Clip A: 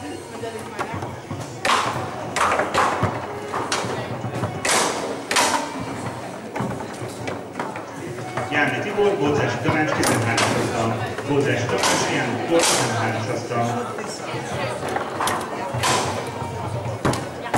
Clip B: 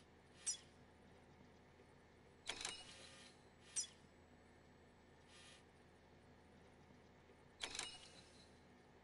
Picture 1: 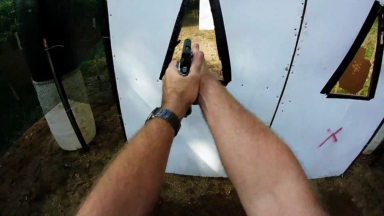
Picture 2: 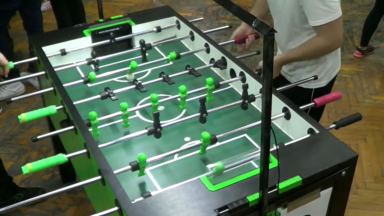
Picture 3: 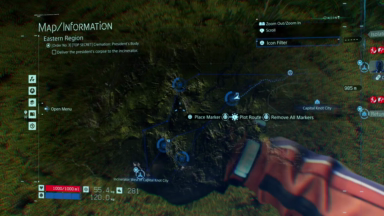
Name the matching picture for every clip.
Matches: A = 2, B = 3